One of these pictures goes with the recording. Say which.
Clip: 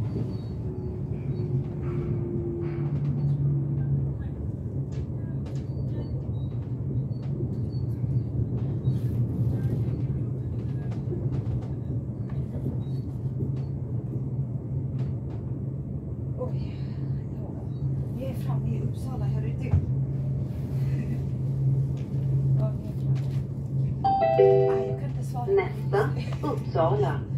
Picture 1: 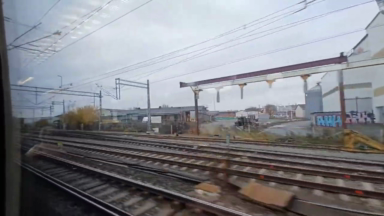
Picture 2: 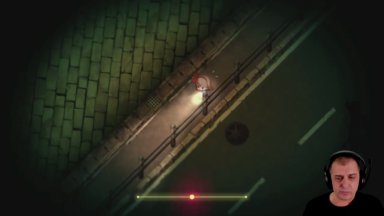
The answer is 1